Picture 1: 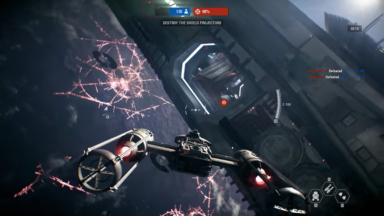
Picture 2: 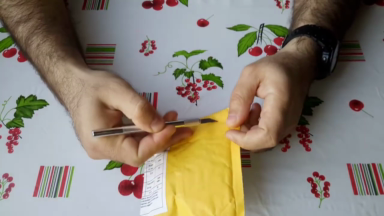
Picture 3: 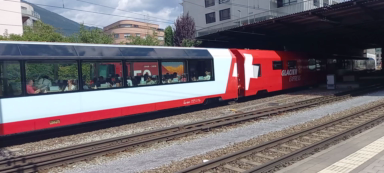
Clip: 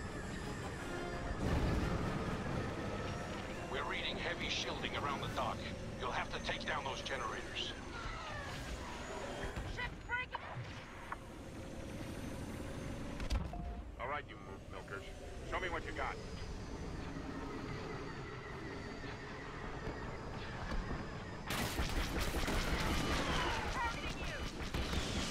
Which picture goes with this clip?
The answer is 1